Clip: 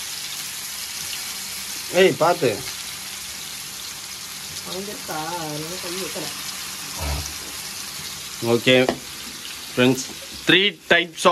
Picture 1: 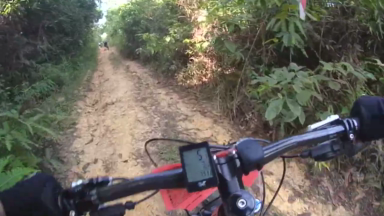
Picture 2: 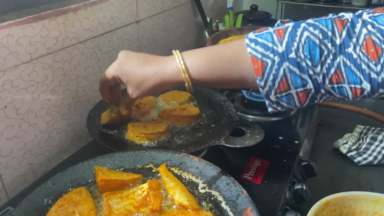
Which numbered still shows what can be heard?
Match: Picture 2